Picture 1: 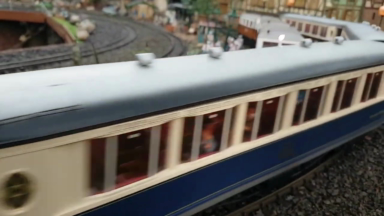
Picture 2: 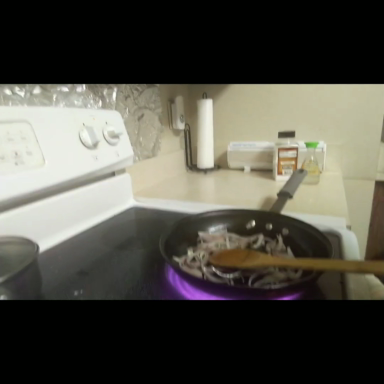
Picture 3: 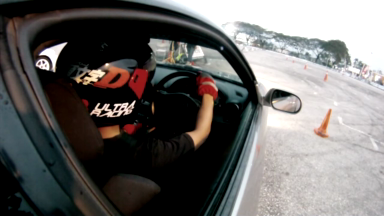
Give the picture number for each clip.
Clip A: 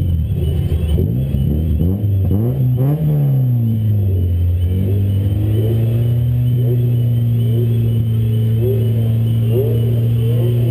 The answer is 3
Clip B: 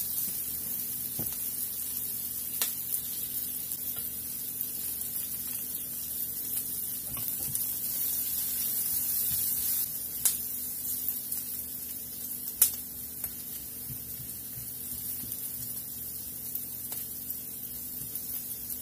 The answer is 2